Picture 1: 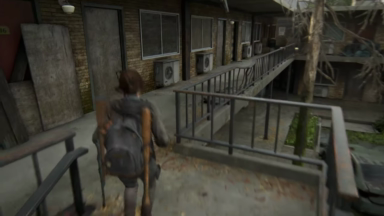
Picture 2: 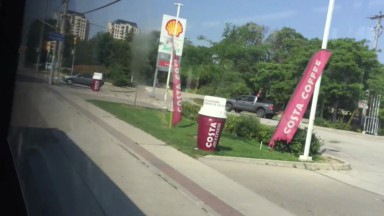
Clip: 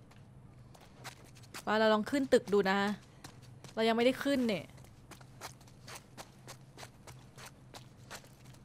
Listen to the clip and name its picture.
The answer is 1